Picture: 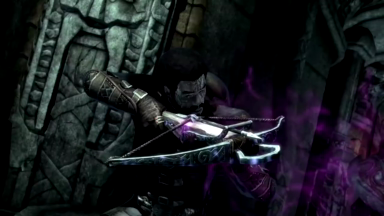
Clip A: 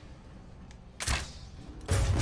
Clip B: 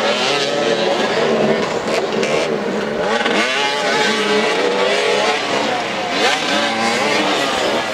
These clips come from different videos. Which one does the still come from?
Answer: A